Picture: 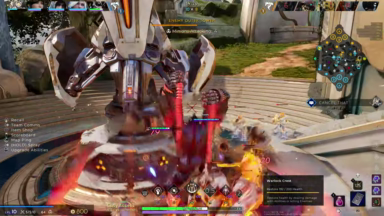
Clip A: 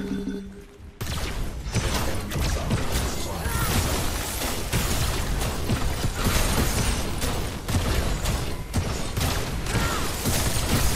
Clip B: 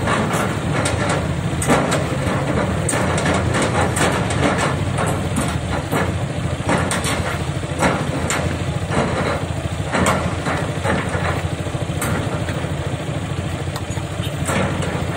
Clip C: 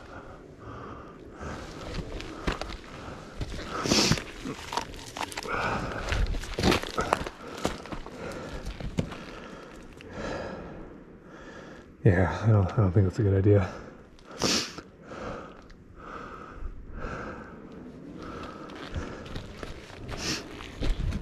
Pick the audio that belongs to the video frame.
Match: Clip A